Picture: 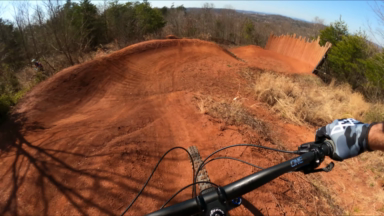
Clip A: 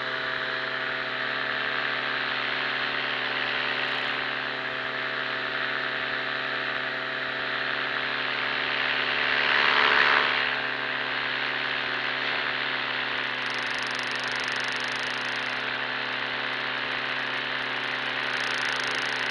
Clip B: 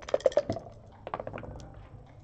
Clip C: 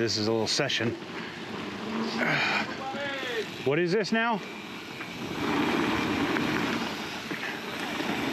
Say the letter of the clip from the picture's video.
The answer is C